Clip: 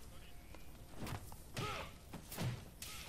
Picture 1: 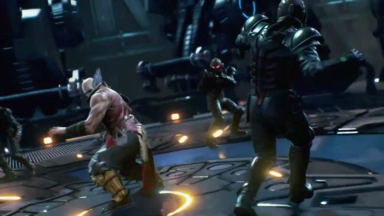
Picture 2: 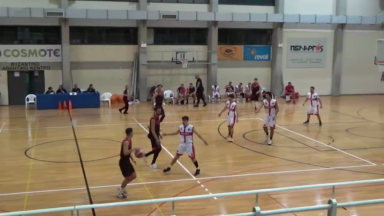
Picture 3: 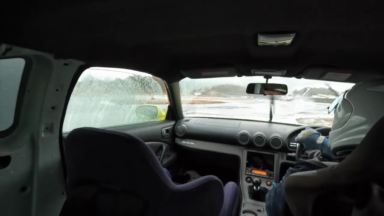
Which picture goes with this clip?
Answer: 1